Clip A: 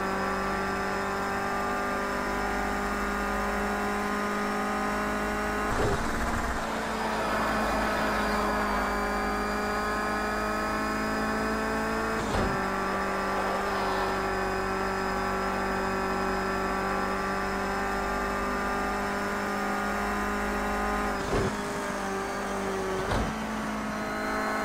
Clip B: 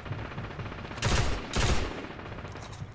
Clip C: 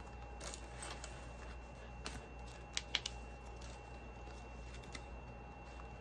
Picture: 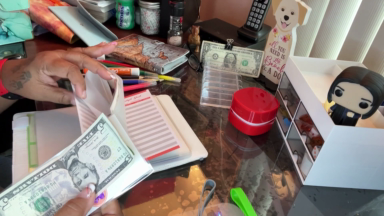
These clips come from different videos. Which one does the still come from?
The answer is C